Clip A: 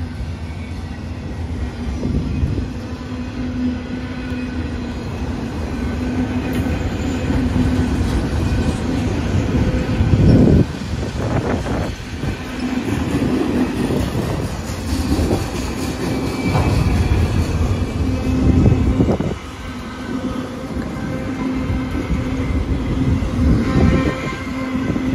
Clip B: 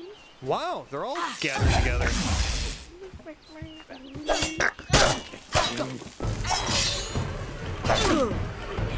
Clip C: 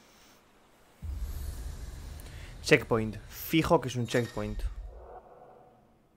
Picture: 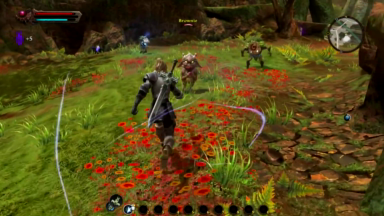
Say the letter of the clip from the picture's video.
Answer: B